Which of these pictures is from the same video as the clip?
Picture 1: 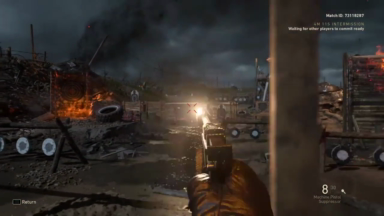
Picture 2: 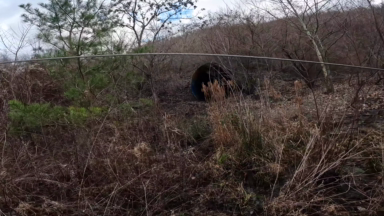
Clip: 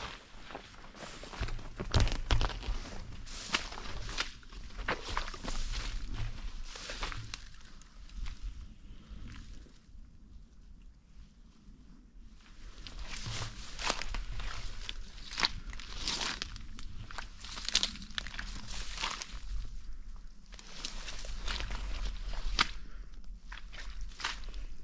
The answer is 2